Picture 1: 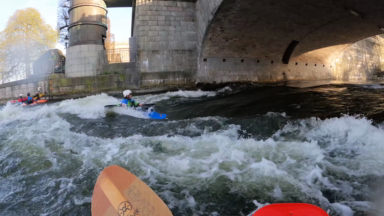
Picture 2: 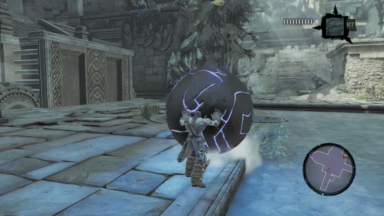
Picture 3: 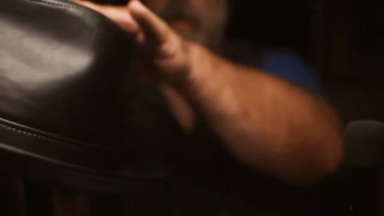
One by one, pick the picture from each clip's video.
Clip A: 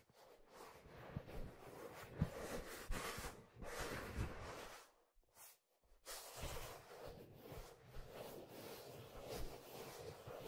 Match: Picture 3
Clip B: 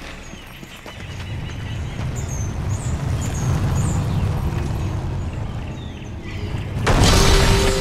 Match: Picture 2